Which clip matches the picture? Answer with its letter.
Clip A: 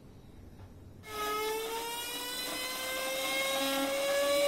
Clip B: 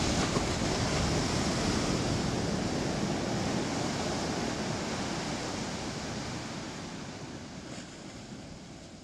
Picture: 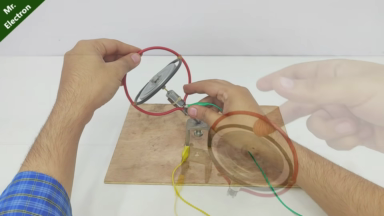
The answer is A